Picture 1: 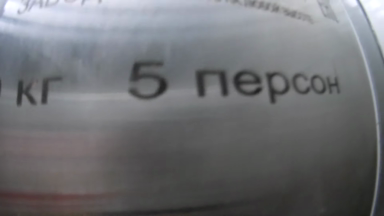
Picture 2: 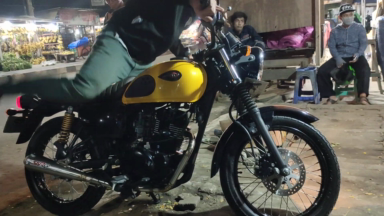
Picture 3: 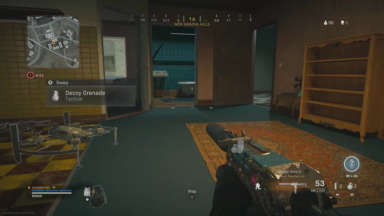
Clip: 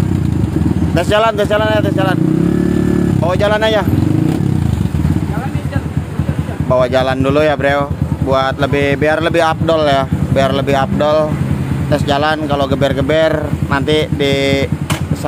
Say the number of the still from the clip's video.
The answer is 2